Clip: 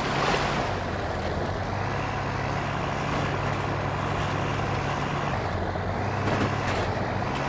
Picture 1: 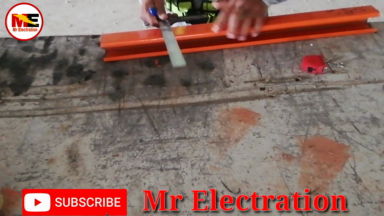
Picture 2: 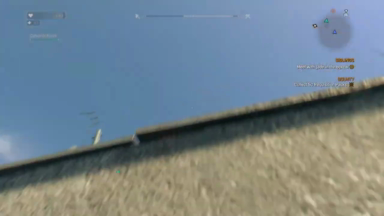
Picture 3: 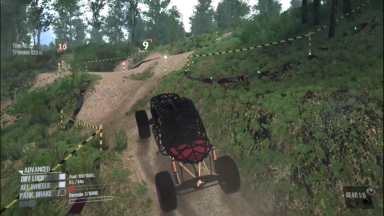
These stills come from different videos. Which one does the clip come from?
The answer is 3